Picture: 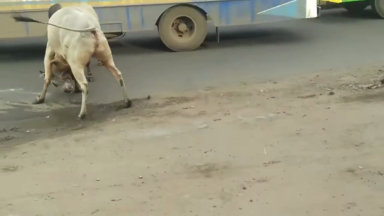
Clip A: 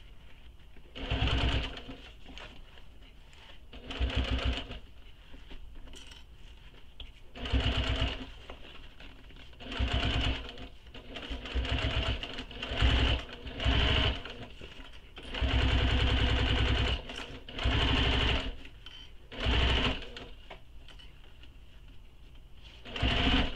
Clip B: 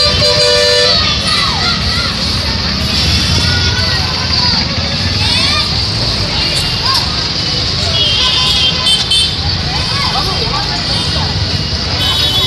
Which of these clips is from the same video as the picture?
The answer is B